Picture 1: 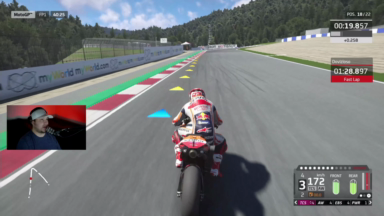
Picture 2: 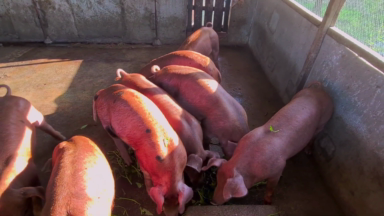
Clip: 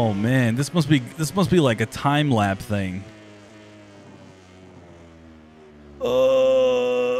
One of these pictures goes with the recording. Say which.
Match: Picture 1